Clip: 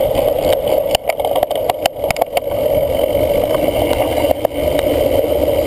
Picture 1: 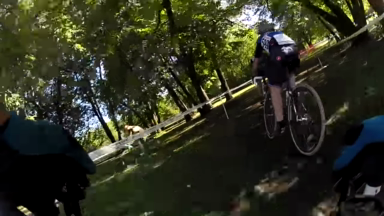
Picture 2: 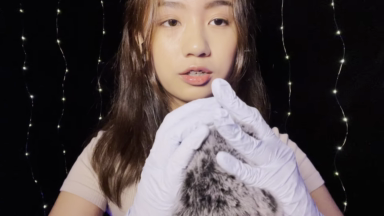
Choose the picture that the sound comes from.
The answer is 1